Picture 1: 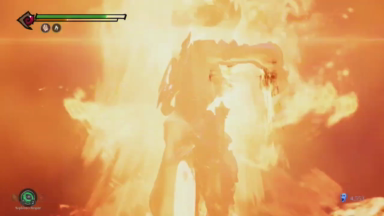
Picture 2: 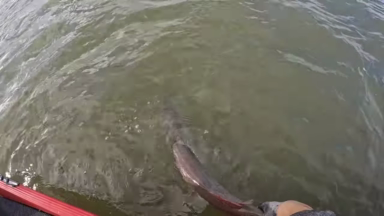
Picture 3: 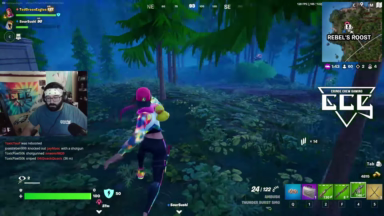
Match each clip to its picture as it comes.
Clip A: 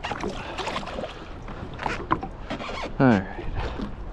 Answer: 2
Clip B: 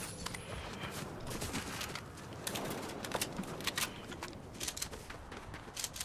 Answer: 3